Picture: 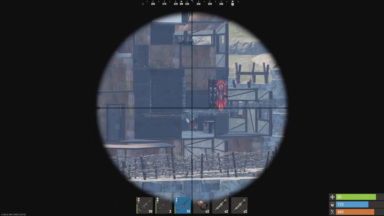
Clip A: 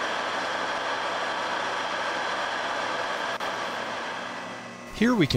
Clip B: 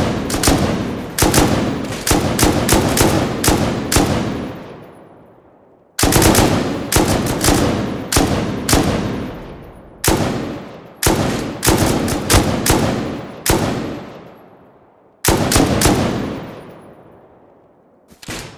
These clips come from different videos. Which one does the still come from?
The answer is B